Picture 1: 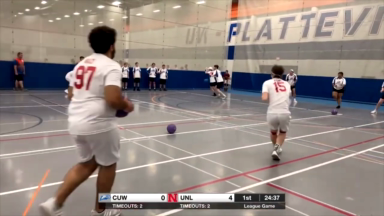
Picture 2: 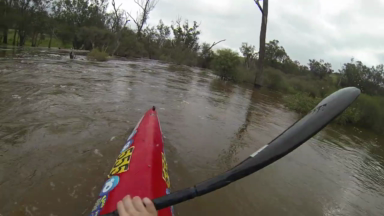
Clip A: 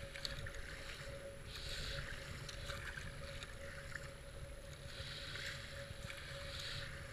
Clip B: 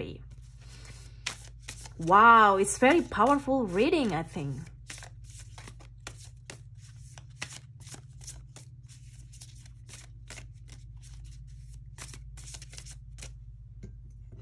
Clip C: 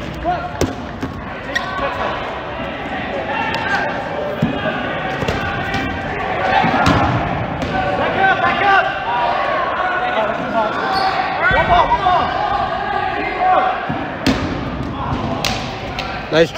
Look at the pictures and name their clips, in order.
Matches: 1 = C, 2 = A